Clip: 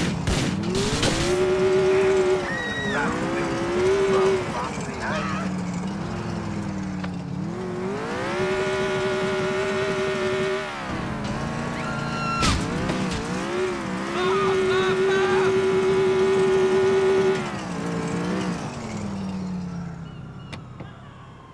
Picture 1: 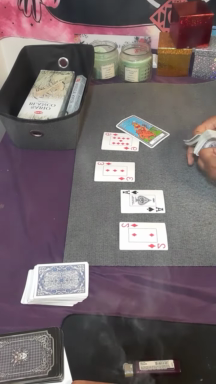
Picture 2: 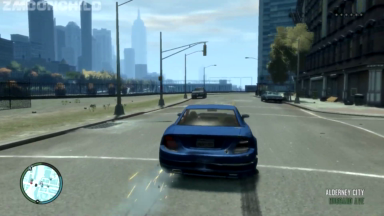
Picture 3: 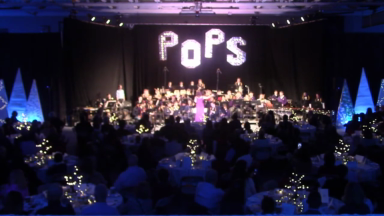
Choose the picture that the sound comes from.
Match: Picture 2